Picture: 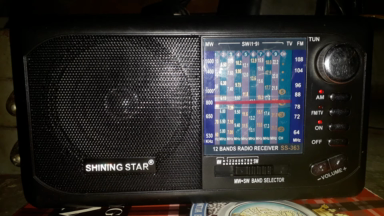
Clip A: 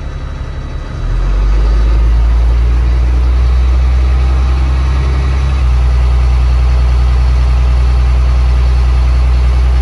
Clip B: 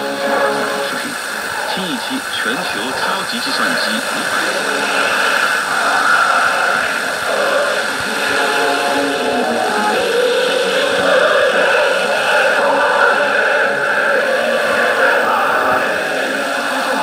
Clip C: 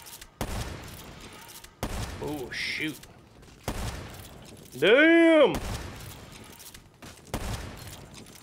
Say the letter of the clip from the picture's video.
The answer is B